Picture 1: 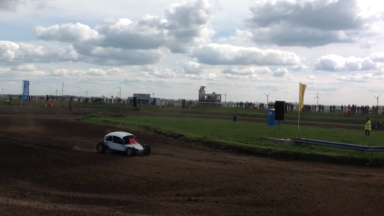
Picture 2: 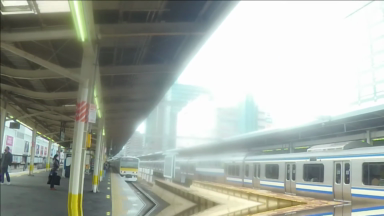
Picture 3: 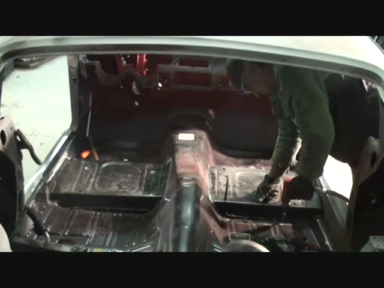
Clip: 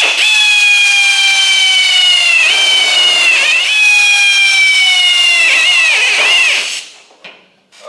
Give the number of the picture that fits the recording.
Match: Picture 3